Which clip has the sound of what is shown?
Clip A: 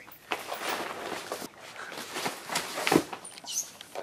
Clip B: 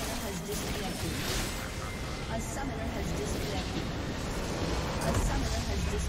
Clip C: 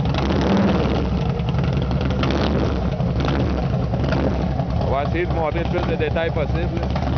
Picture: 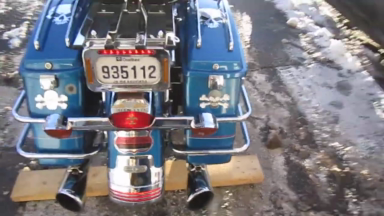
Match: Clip C